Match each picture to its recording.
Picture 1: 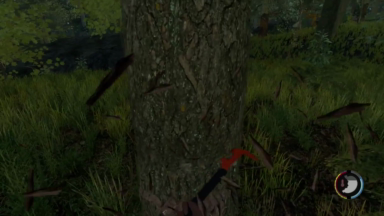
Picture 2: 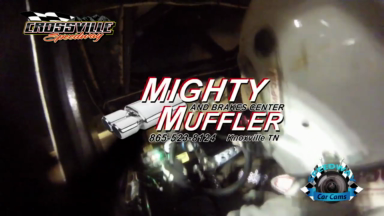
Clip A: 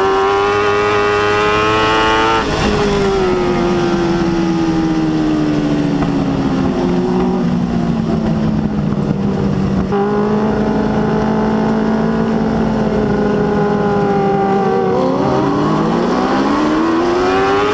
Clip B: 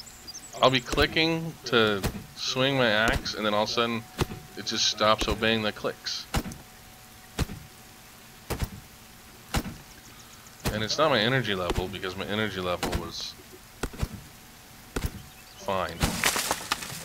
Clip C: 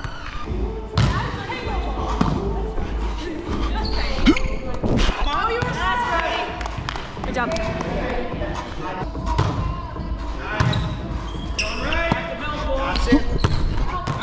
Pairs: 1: B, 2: A